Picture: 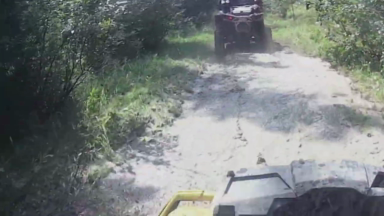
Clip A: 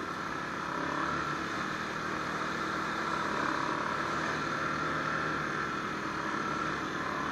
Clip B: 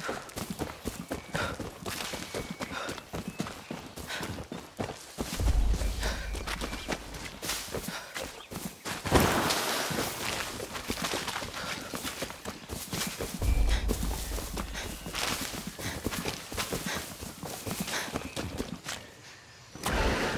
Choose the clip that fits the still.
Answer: A